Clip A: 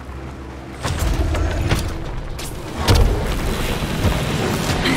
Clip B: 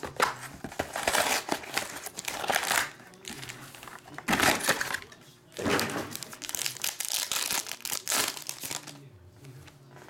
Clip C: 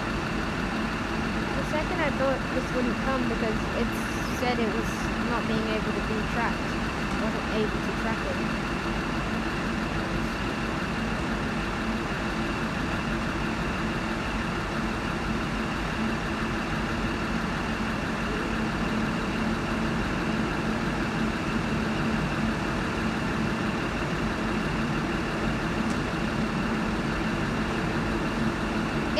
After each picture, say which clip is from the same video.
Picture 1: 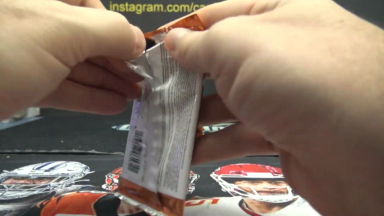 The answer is B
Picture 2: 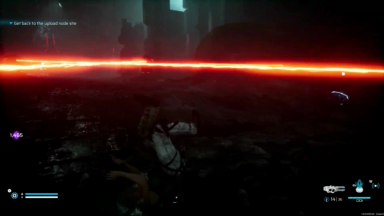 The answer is A